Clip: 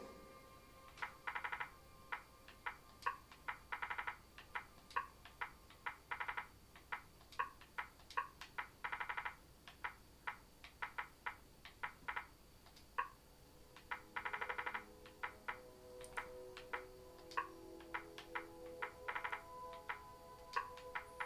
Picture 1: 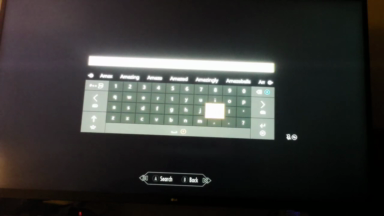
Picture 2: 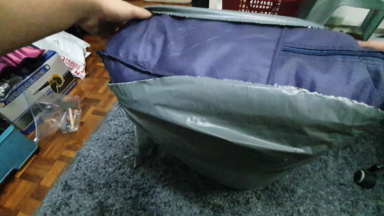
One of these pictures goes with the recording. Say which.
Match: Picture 1